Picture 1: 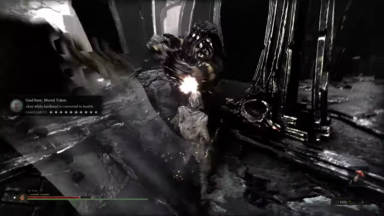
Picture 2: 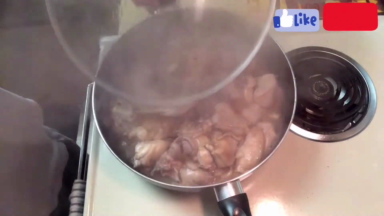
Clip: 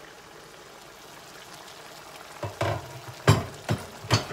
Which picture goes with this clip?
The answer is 2